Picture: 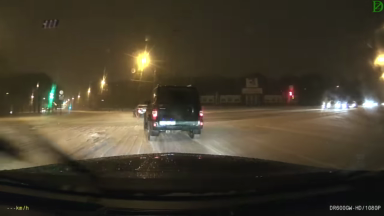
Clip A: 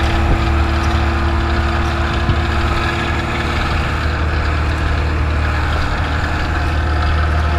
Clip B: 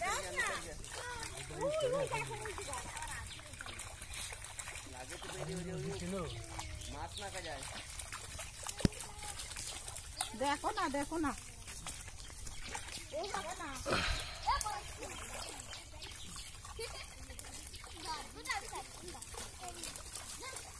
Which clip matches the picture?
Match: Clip A